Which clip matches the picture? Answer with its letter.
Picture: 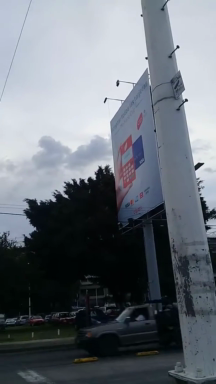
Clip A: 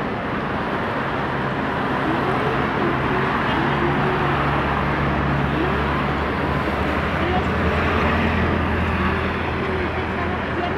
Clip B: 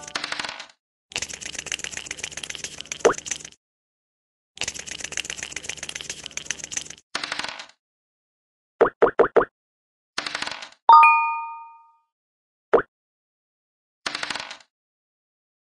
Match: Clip A